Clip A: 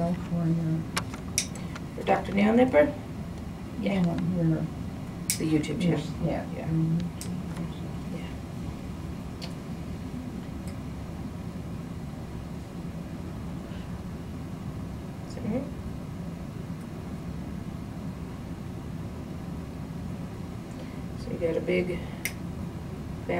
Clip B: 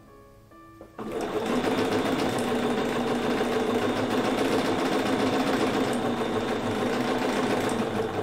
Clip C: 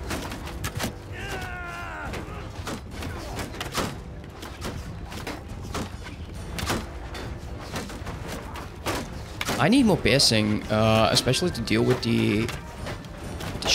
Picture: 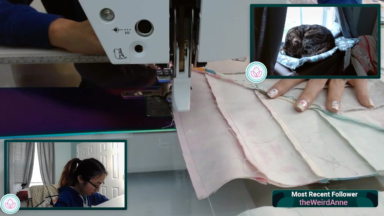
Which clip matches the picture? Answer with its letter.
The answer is B